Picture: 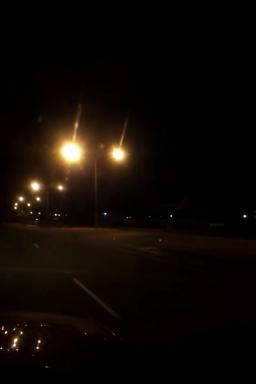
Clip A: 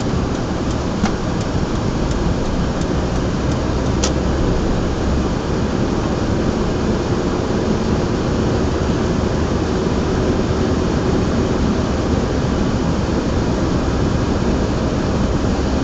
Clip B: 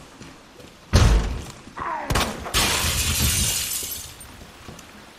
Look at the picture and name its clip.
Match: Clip A